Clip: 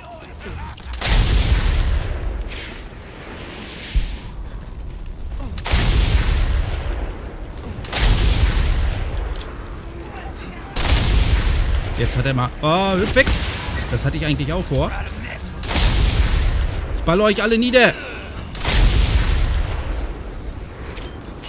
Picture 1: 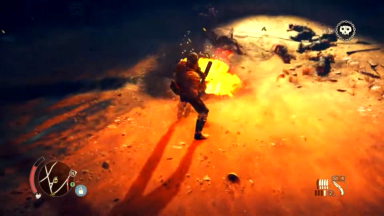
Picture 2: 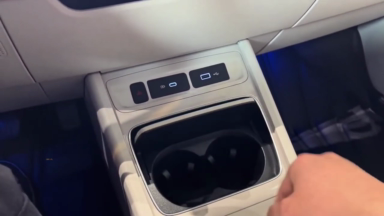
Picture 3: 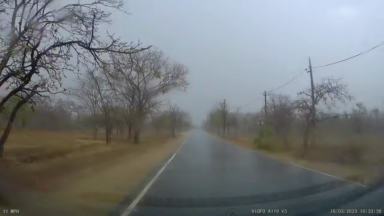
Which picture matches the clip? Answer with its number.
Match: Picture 1